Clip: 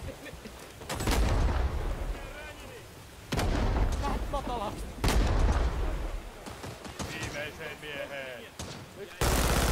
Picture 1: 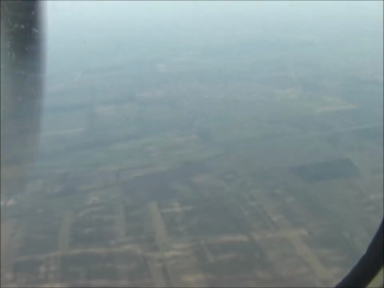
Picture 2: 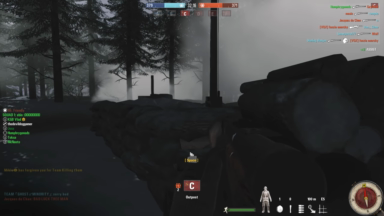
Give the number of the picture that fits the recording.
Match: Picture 2